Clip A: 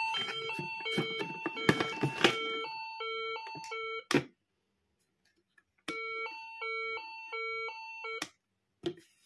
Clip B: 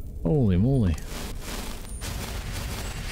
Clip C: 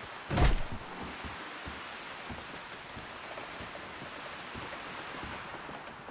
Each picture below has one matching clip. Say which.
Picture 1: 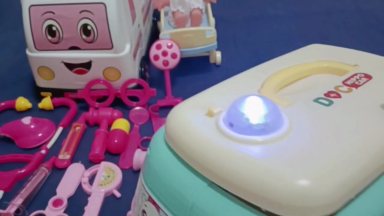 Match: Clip A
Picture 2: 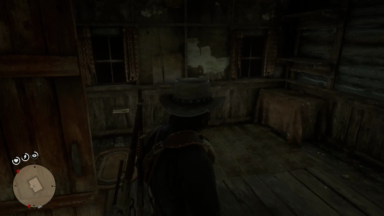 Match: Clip C